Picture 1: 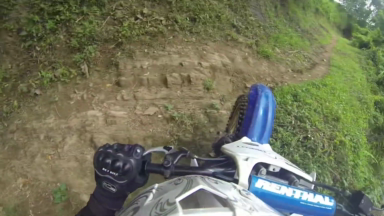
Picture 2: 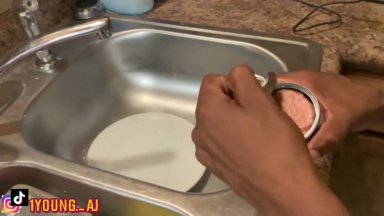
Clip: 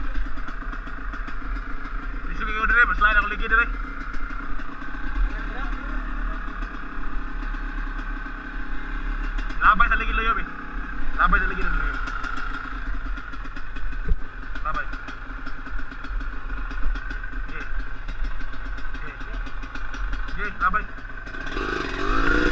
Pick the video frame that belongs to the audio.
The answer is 1